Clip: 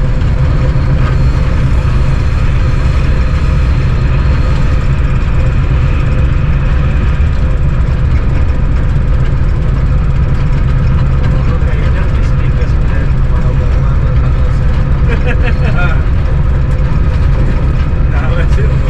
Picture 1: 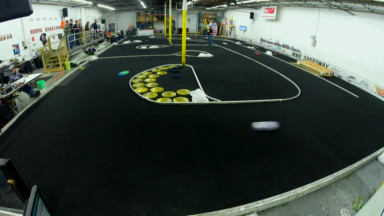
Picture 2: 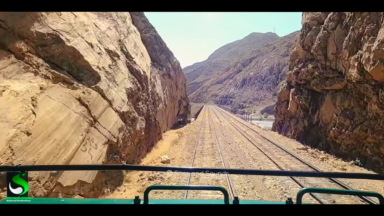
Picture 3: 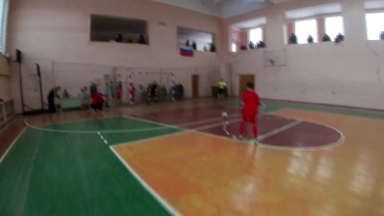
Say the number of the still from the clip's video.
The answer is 2